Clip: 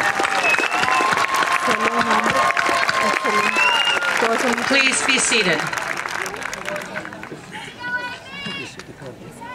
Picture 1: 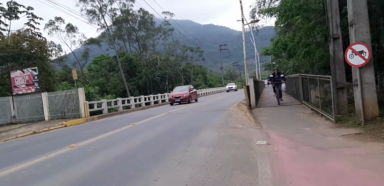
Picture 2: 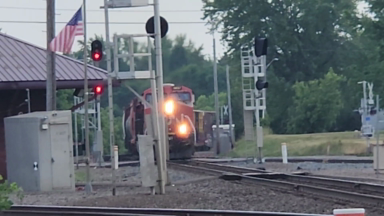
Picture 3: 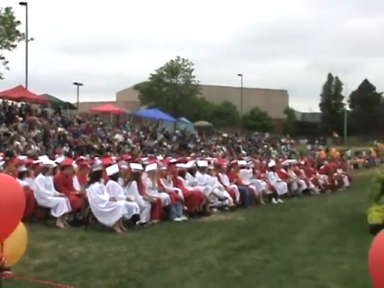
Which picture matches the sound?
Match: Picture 3